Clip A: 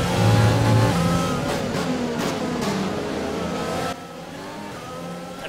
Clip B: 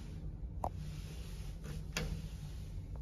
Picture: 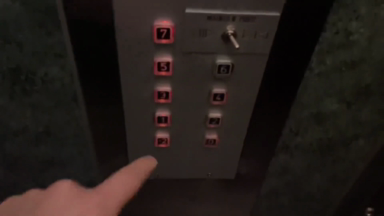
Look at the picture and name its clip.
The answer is B